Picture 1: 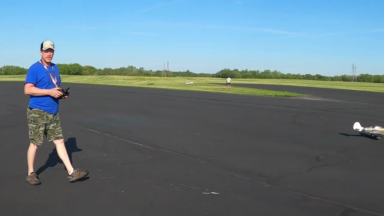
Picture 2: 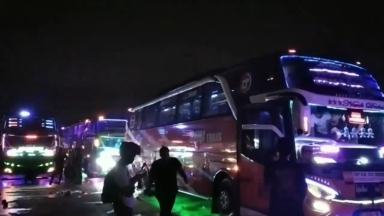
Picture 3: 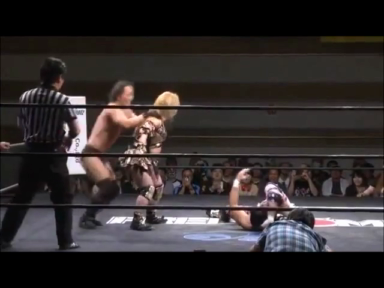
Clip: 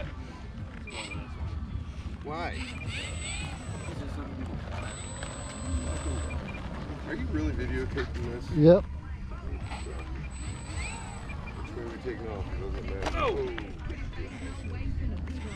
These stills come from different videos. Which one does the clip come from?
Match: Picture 1